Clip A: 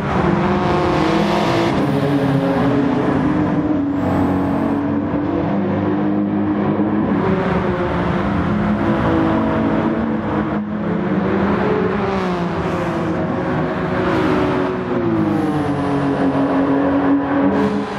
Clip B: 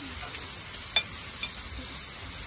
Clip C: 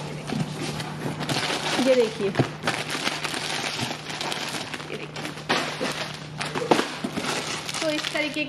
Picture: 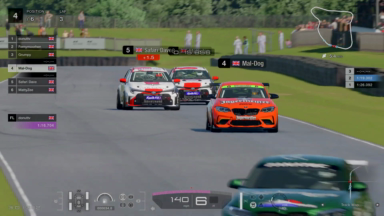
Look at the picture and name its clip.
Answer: A